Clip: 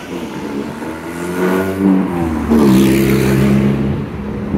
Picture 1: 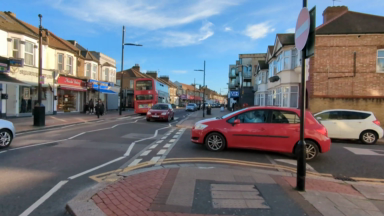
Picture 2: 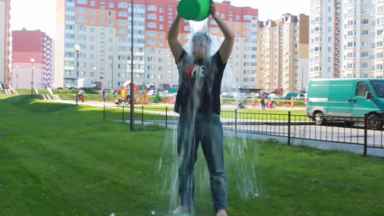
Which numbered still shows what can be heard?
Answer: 1